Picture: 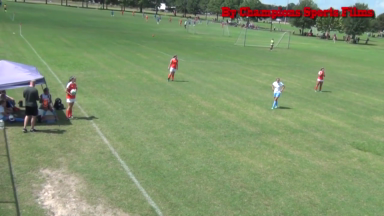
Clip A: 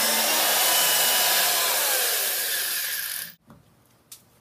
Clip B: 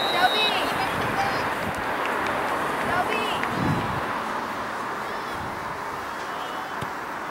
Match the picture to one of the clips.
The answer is B